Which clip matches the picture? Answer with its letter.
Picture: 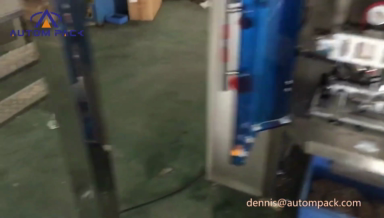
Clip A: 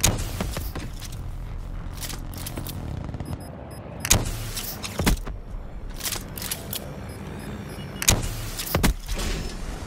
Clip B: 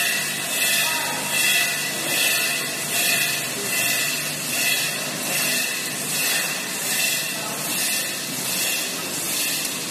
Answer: B